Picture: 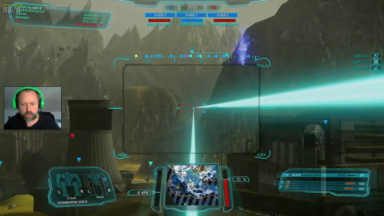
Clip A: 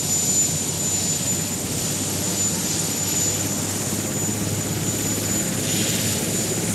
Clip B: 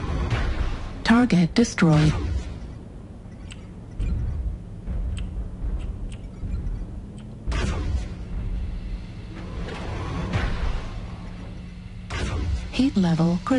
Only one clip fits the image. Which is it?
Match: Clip B